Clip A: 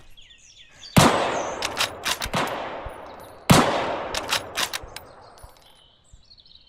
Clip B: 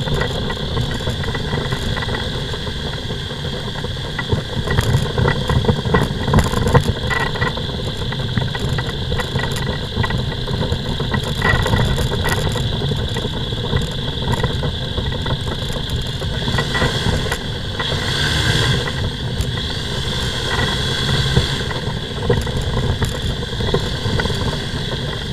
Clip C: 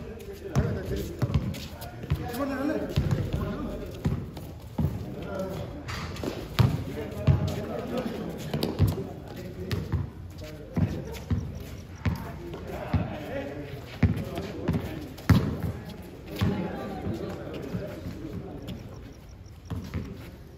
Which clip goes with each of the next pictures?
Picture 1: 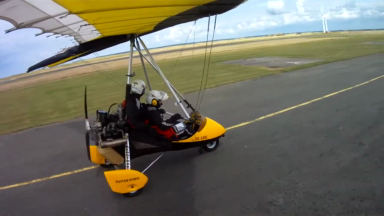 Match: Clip B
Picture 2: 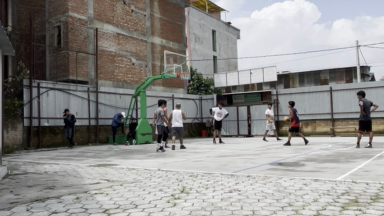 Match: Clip C